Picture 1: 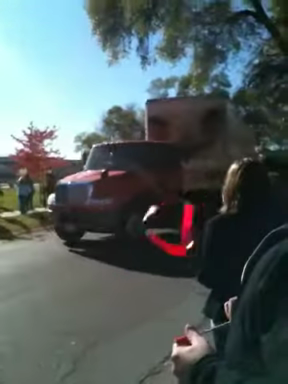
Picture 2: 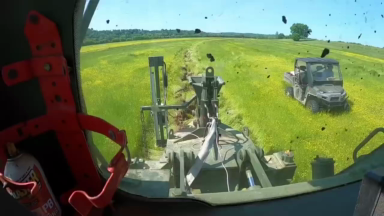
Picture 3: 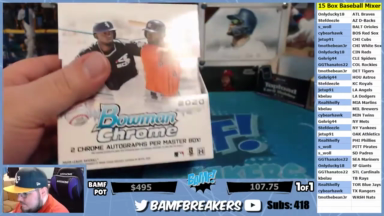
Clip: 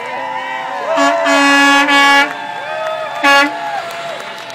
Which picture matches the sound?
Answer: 1